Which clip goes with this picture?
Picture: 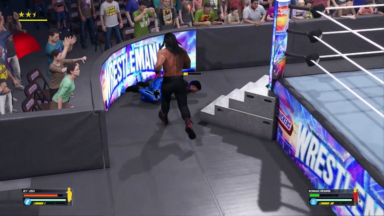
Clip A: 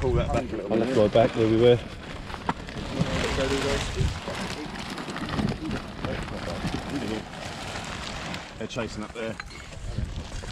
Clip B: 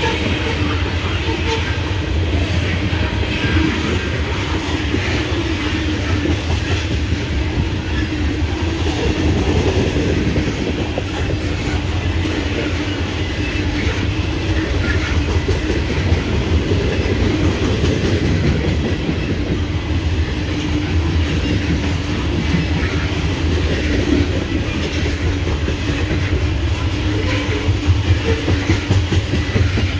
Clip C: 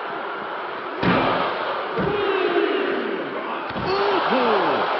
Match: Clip C